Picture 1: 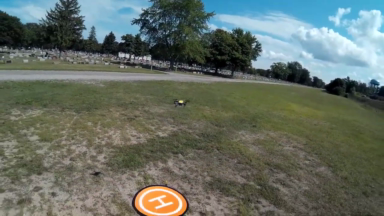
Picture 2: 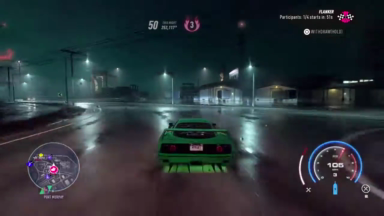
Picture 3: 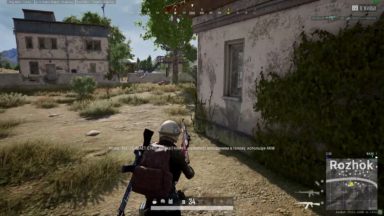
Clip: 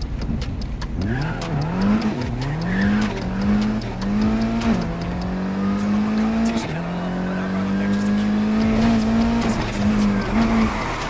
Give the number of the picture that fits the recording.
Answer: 2